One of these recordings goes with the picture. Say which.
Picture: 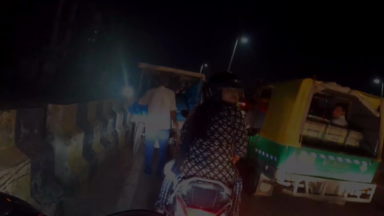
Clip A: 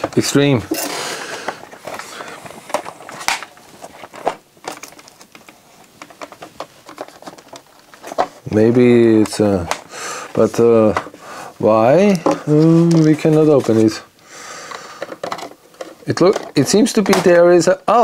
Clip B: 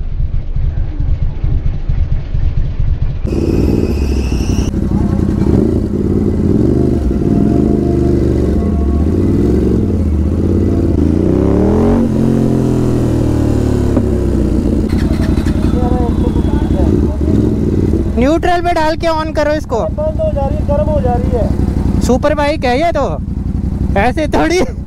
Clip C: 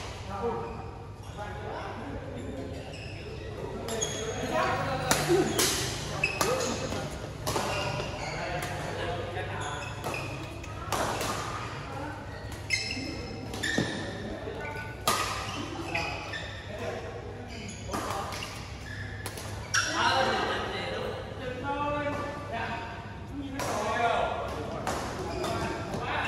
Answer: B